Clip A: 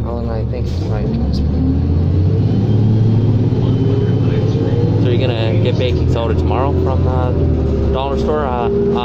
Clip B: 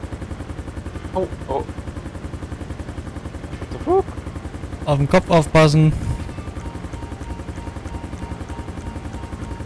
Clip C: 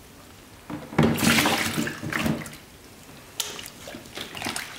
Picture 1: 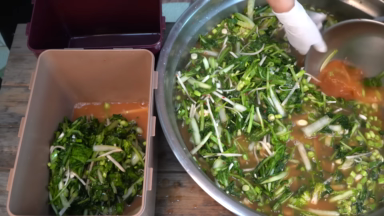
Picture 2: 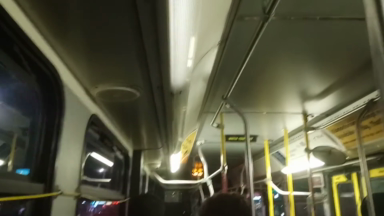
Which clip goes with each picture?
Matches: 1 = C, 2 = A